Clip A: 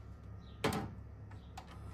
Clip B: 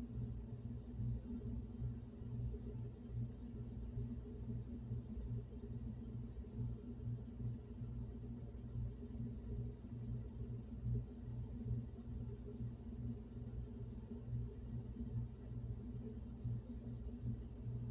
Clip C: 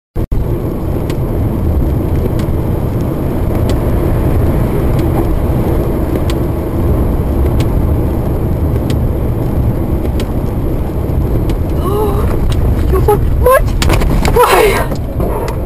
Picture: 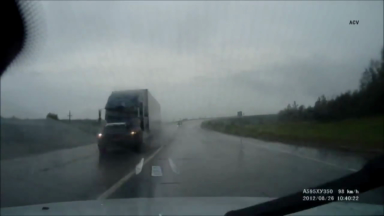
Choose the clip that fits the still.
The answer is C